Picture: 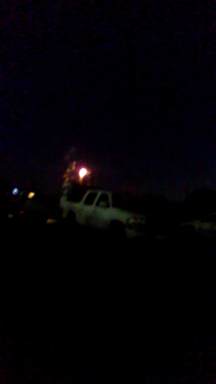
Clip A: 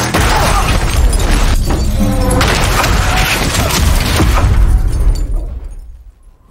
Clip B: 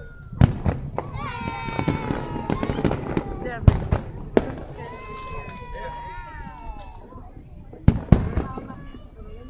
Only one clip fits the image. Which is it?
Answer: B